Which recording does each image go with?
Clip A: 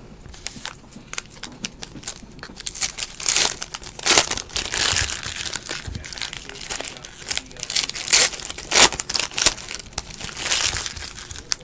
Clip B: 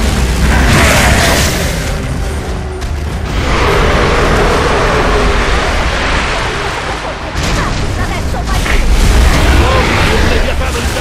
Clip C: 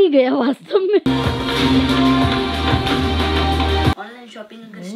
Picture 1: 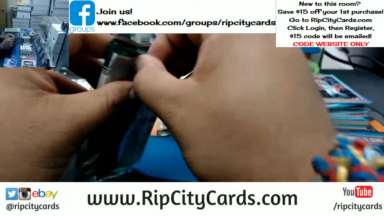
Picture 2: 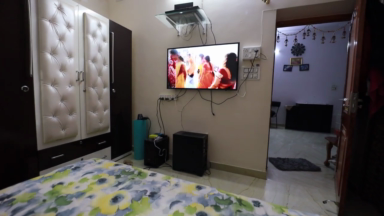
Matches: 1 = A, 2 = C